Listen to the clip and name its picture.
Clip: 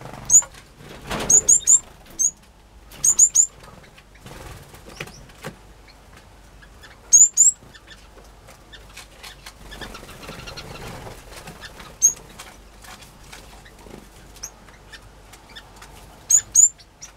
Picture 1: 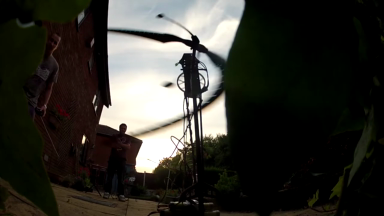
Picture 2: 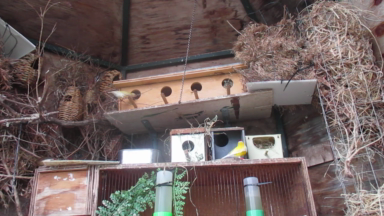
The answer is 2